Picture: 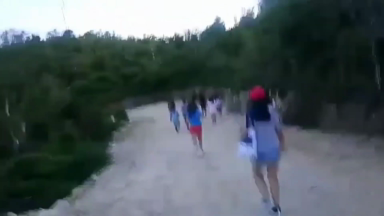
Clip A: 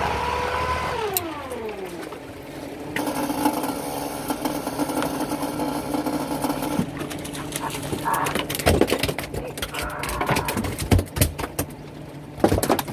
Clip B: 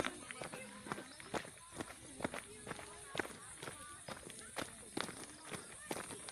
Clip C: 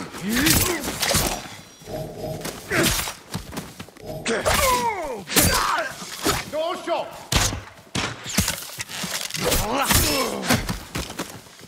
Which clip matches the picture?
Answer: B